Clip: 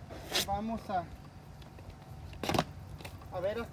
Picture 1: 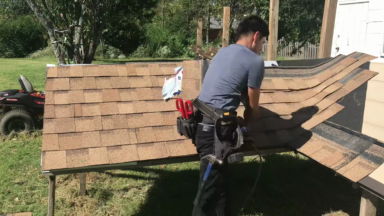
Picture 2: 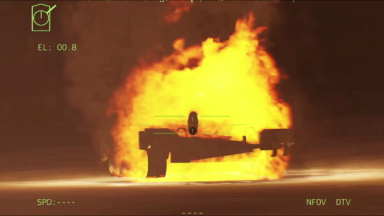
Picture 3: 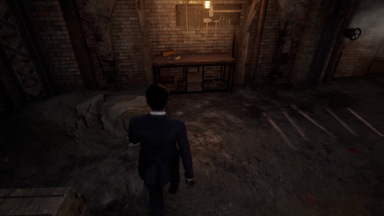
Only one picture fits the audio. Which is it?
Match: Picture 1